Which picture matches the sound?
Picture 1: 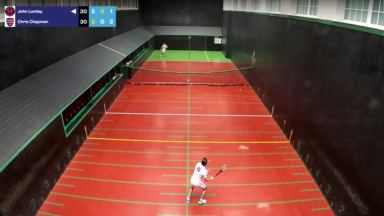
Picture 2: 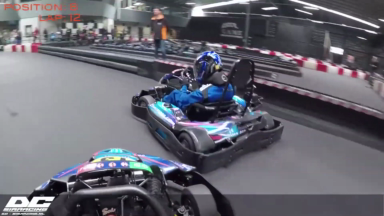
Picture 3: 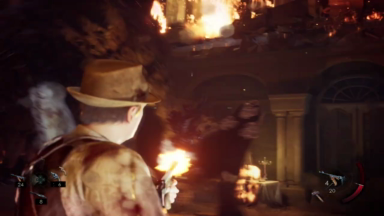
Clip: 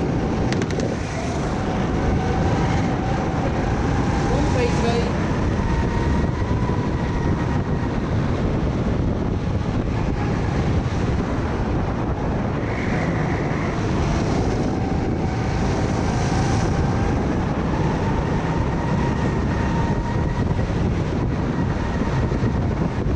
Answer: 2